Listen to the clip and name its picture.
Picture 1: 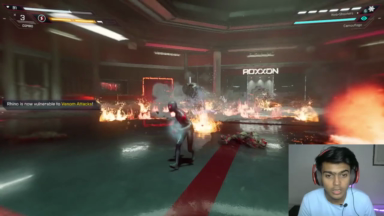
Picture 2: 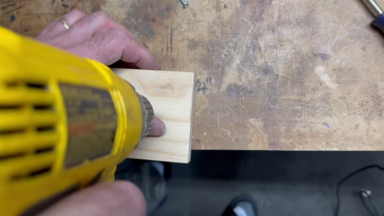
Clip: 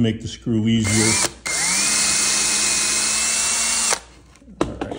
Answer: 2